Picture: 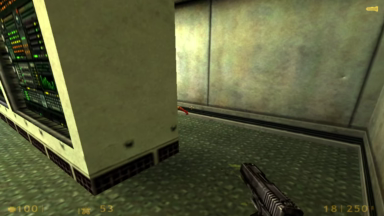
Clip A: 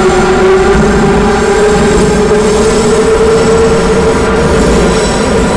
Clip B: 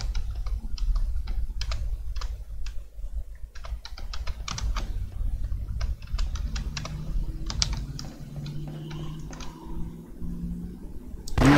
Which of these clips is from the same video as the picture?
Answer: B